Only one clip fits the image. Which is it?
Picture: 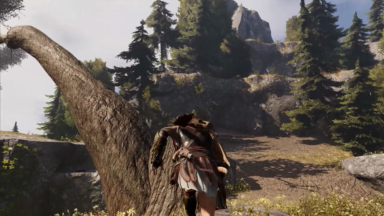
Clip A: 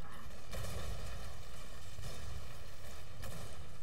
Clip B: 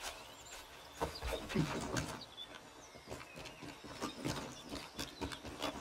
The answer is B